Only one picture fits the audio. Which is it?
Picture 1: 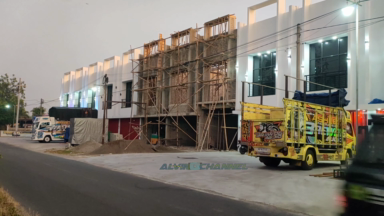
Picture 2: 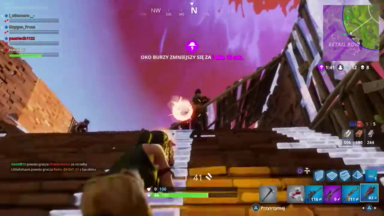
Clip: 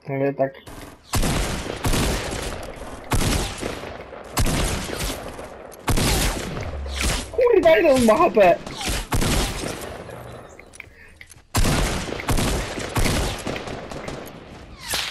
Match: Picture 2